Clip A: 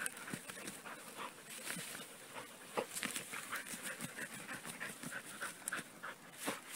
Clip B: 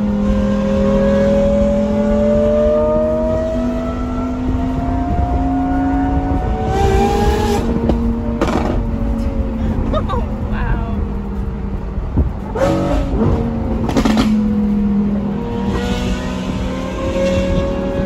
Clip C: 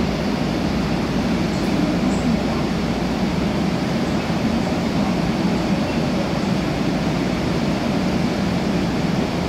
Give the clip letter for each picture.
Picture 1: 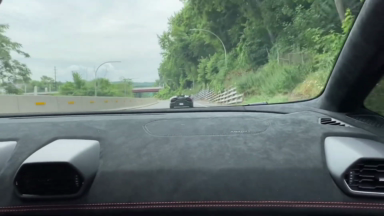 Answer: B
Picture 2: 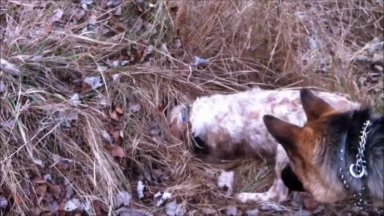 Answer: A